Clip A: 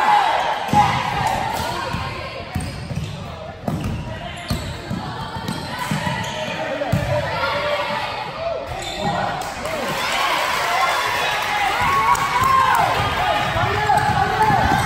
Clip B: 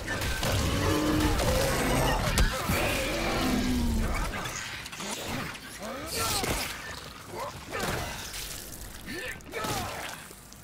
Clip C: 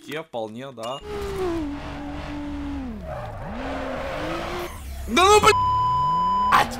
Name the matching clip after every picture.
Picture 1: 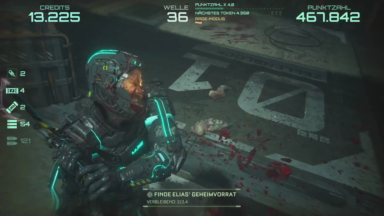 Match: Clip B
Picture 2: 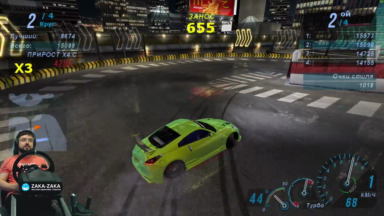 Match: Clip C